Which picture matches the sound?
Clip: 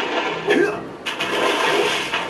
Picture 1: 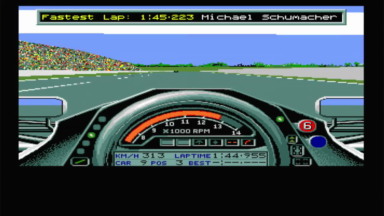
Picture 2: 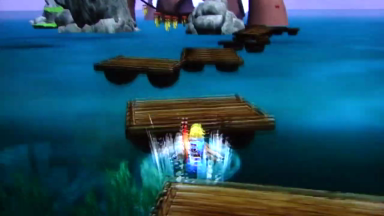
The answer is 2